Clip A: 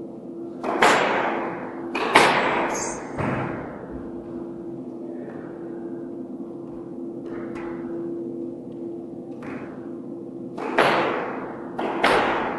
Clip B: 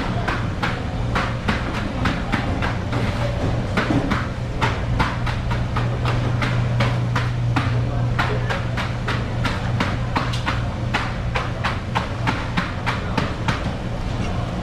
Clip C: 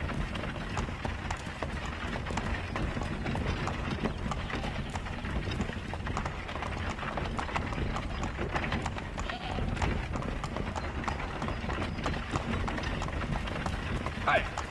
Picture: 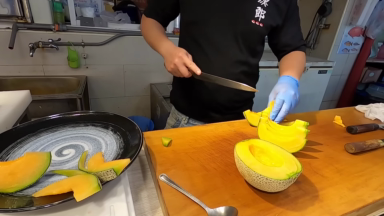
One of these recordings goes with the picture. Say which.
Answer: B